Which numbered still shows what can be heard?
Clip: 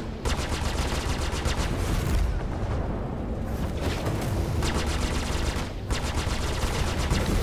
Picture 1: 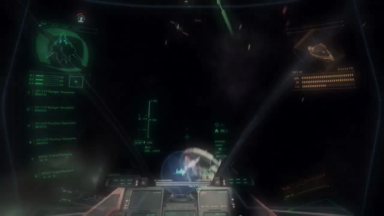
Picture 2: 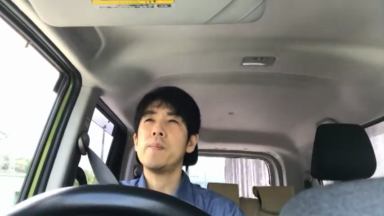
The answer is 1